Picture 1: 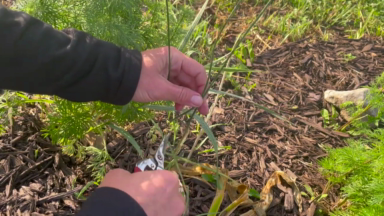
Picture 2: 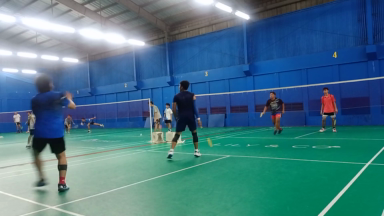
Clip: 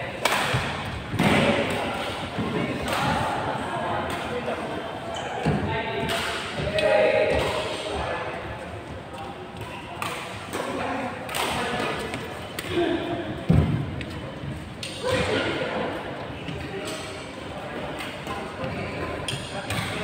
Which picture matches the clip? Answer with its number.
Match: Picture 2